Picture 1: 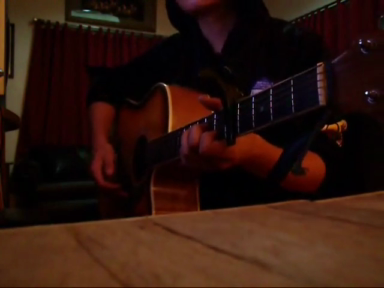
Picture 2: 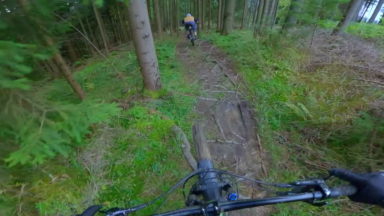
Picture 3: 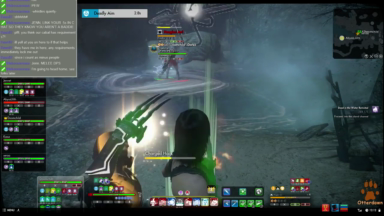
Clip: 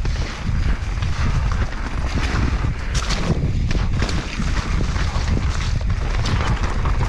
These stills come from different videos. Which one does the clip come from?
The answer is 2